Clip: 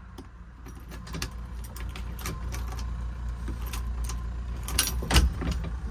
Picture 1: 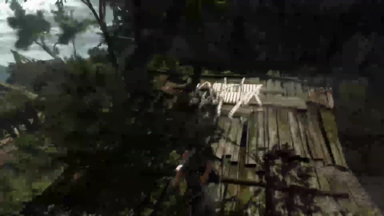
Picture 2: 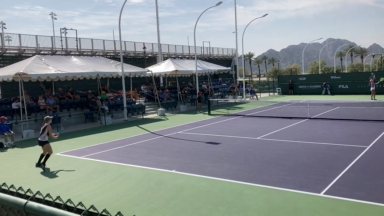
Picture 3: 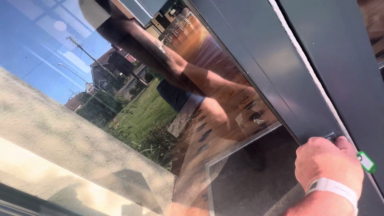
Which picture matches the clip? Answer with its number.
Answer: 3